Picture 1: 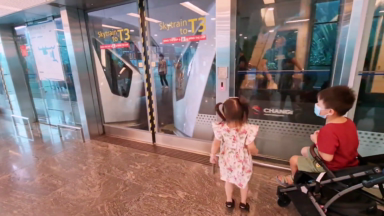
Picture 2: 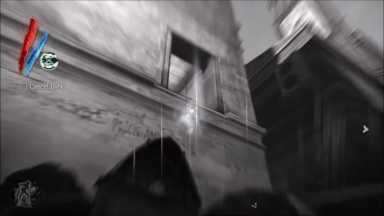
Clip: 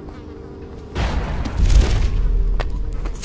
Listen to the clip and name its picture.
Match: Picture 2